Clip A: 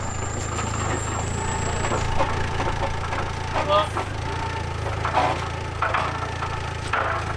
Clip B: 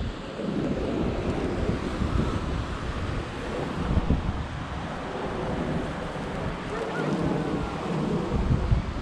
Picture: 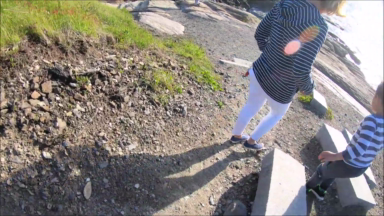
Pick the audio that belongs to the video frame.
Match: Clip B